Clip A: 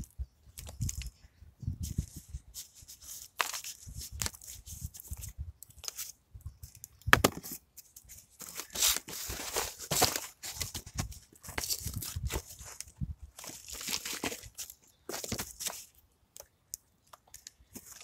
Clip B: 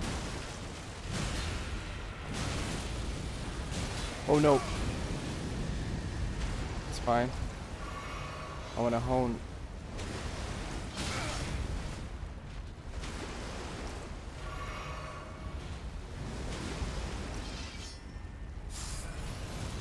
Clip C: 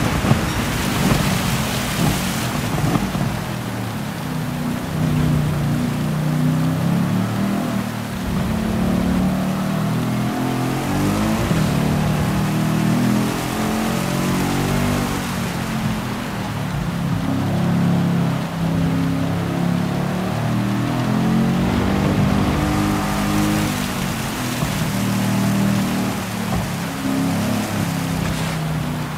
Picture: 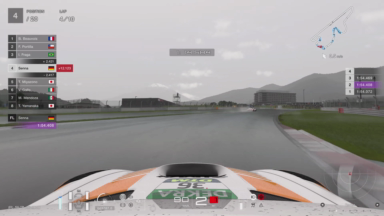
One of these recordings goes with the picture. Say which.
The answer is C